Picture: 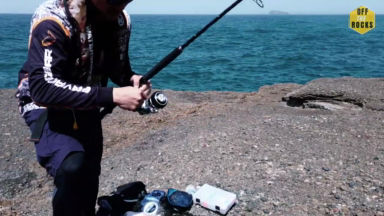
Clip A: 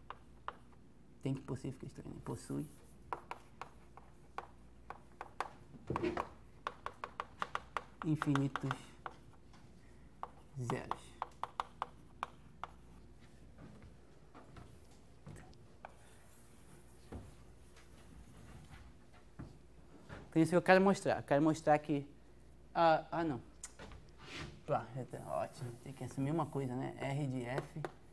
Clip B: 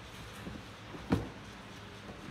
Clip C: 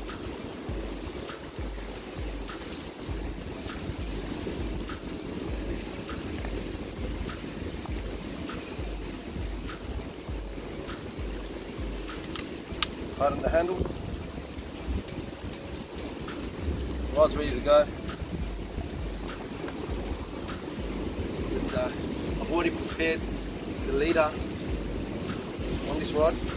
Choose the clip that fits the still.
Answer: C